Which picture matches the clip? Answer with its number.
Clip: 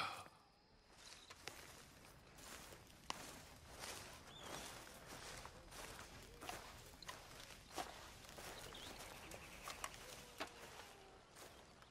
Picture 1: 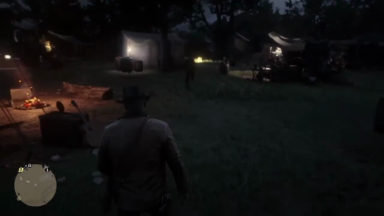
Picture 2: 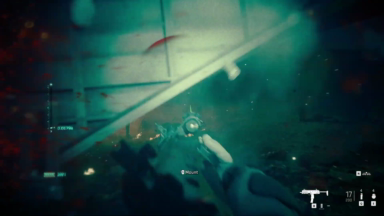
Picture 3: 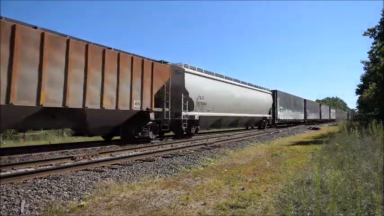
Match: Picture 1